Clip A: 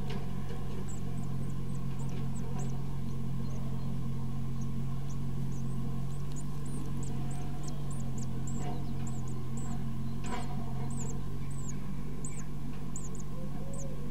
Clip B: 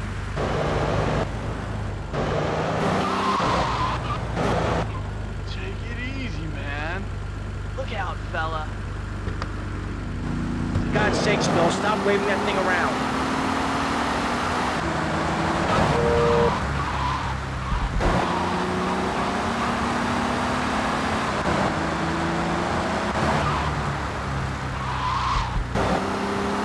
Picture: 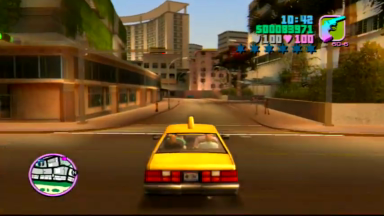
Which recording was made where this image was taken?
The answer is B